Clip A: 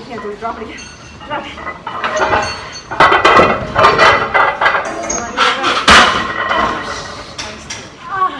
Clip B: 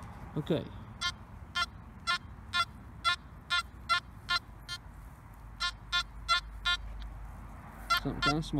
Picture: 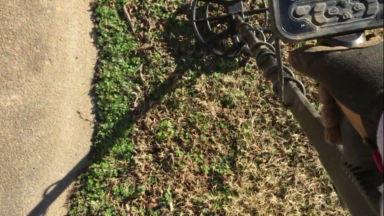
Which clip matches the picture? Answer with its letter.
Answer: B